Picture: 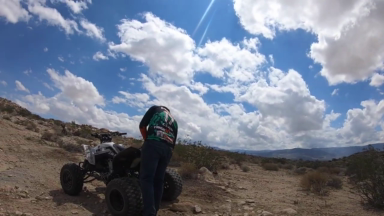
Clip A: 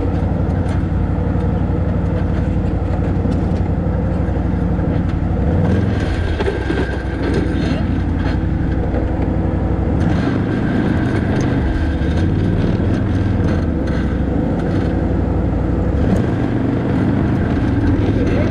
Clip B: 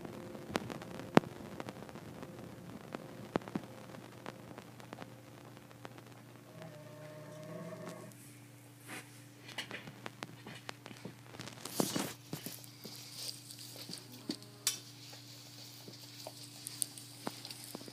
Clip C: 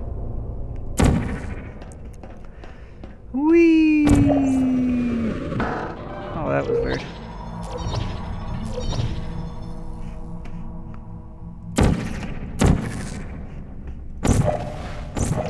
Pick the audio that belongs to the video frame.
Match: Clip A